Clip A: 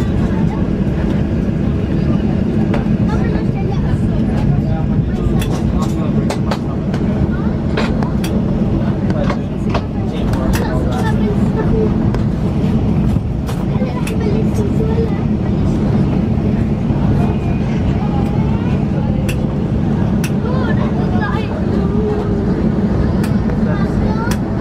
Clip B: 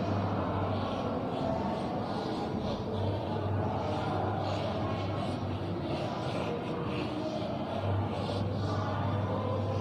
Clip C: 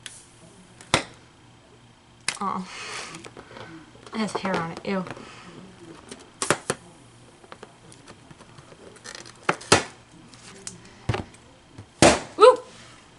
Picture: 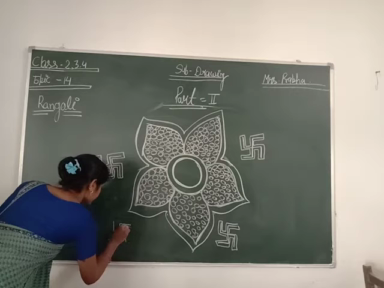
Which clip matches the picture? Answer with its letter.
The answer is B